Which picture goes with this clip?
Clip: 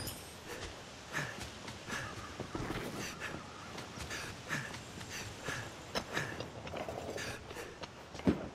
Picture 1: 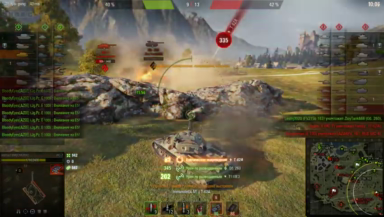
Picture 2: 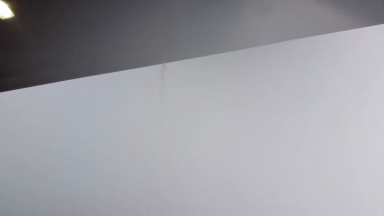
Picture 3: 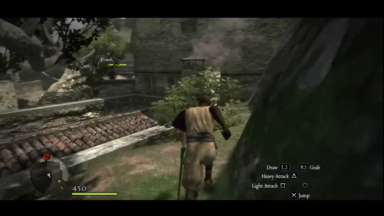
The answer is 3